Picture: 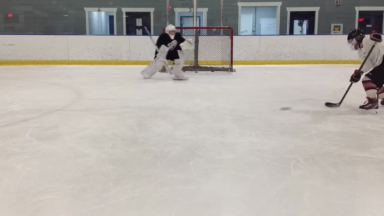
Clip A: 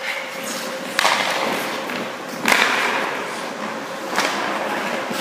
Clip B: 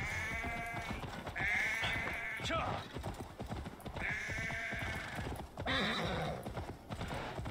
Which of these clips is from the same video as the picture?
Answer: A